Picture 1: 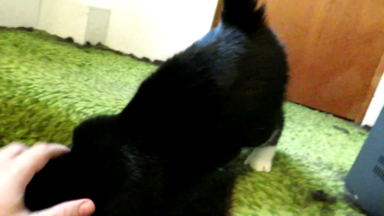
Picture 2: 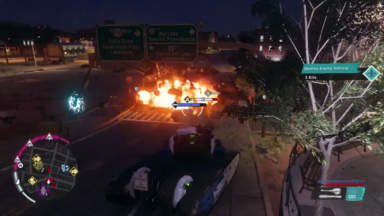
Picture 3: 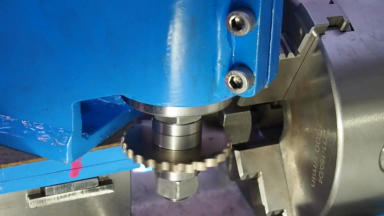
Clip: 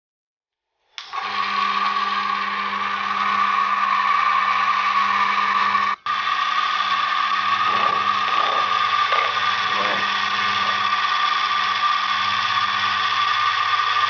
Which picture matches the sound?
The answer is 3